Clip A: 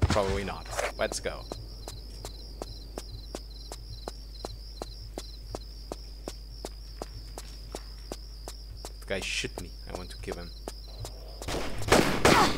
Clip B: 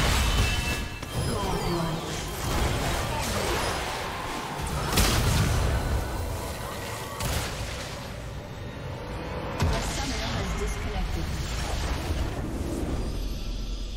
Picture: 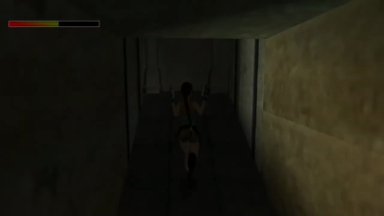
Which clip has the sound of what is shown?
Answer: A